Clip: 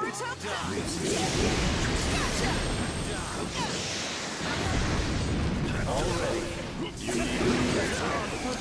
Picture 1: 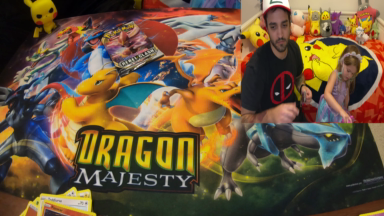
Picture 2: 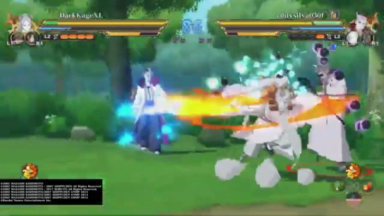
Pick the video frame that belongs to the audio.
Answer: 2